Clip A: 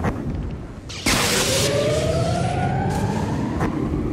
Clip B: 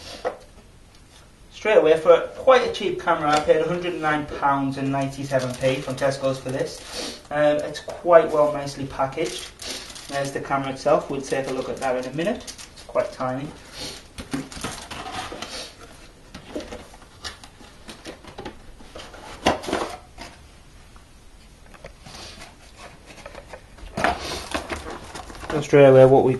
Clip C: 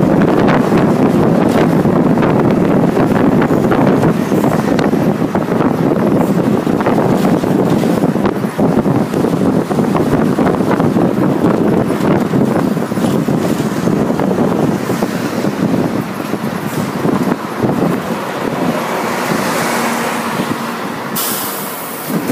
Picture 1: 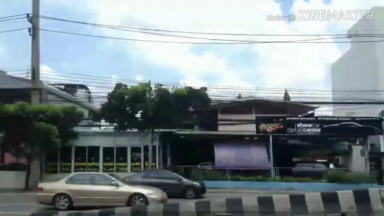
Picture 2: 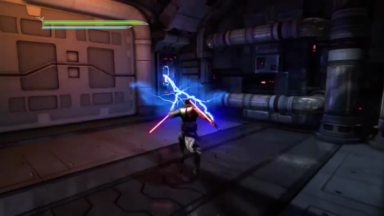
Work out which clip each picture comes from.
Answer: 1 C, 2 A